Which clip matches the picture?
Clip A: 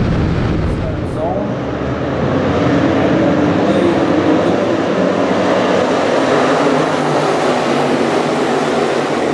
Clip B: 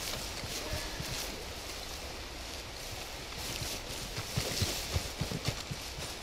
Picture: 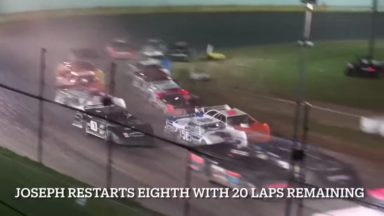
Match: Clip A